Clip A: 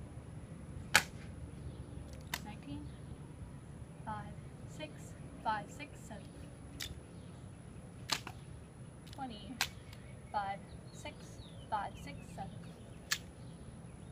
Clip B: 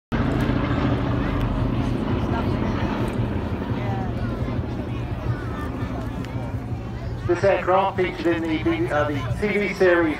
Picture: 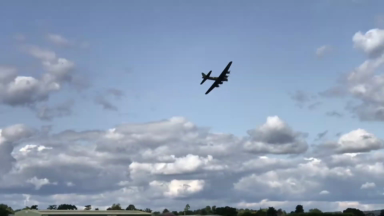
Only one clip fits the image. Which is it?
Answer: B